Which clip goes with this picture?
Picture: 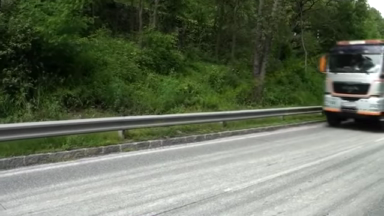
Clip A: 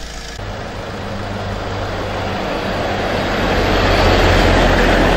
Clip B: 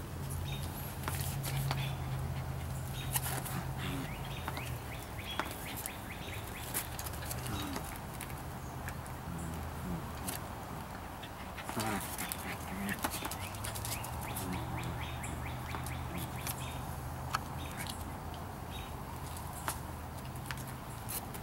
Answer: A